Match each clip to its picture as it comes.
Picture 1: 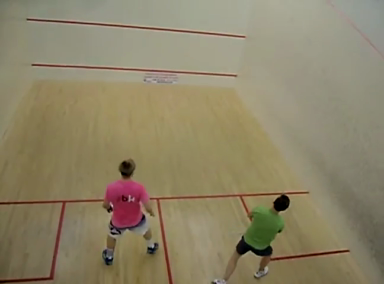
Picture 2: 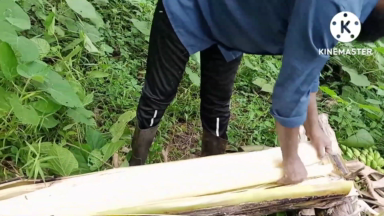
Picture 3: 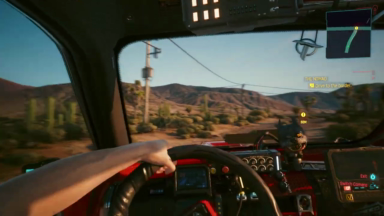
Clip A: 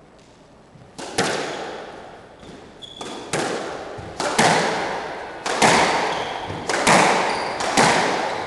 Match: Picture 1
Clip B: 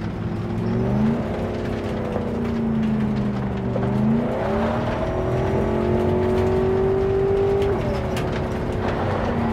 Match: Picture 3